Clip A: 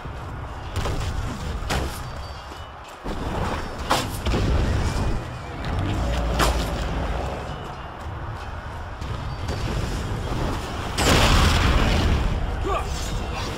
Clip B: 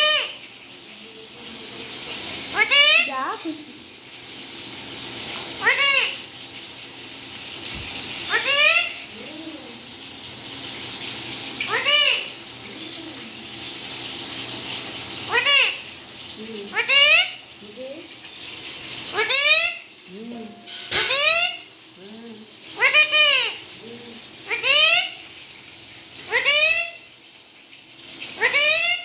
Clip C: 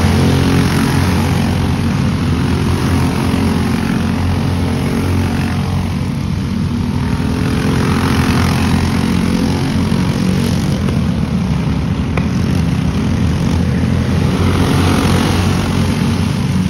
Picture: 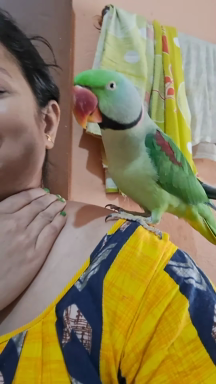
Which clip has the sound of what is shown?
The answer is B